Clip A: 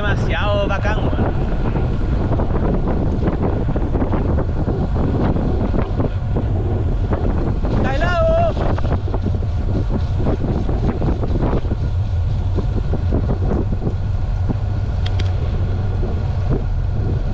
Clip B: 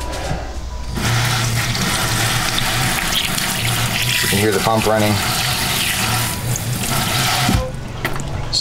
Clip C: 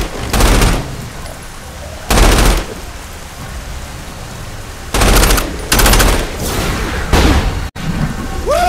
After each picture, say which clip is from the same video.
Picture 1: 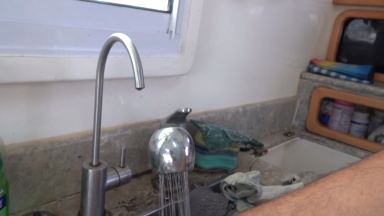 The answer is B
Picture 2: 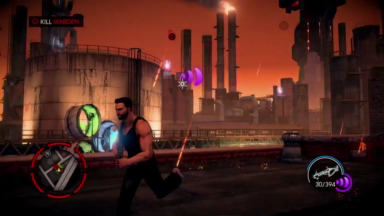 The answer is C